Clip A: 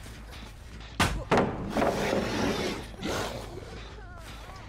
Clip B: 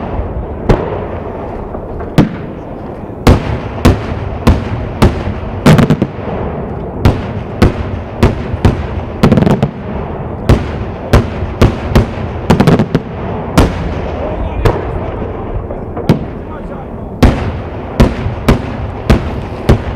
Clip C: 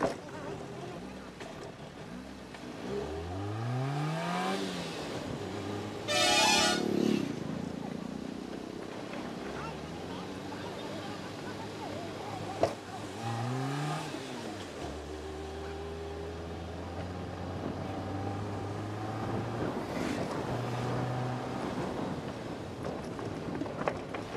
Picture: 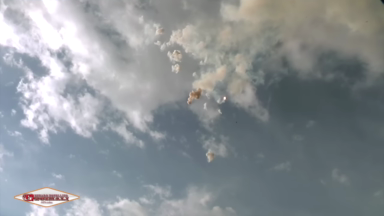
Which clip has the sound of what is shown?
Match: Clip B